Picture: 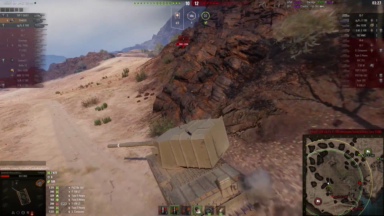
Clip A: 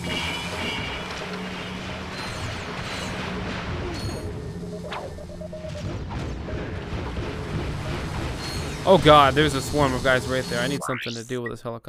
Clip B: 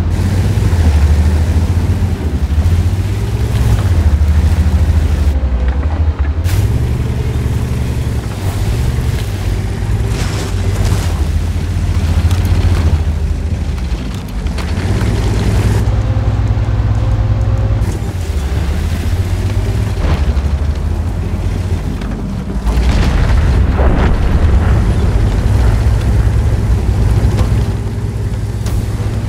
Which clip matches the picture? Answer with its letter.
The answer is B